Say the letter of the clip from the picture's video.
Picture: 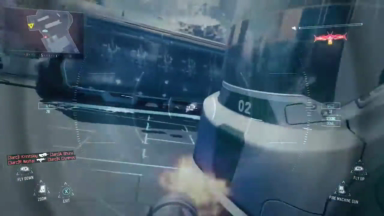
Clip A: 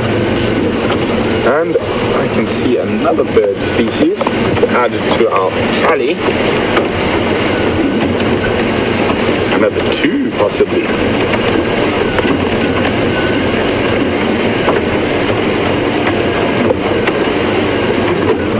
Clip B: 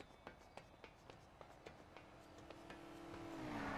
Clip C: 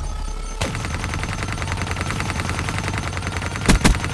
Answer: C